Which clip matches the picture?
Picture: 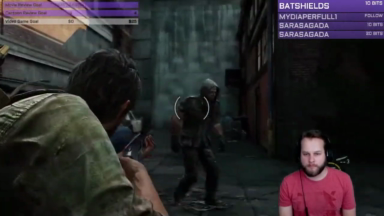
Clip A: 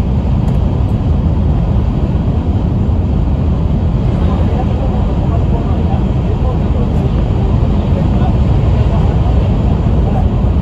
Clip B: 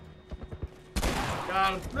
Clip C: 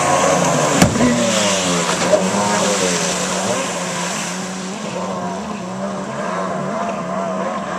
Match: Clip B